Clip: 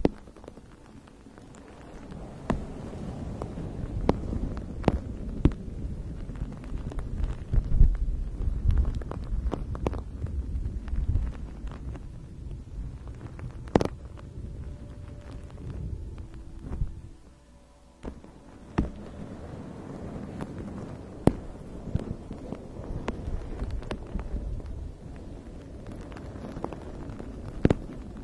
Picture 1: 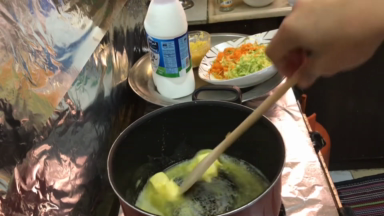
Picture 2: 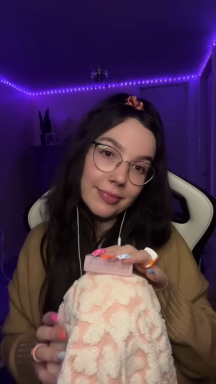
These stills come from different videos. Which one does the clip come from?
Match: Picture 2